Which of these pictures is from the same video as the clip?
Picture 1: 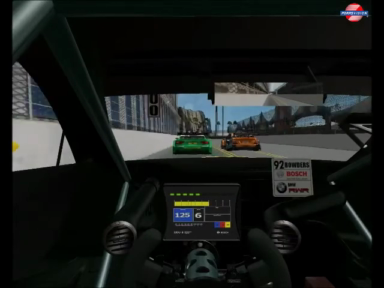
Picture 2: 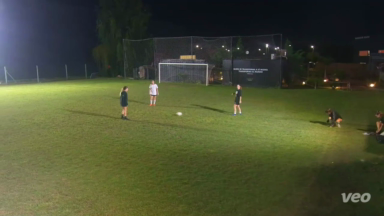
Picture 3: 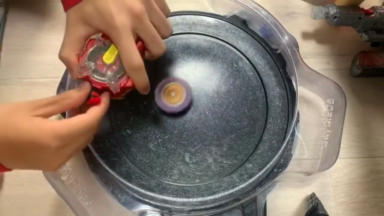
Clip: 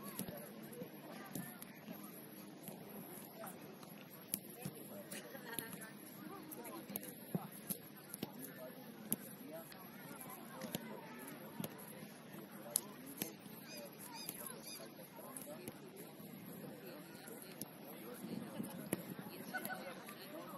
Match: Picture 2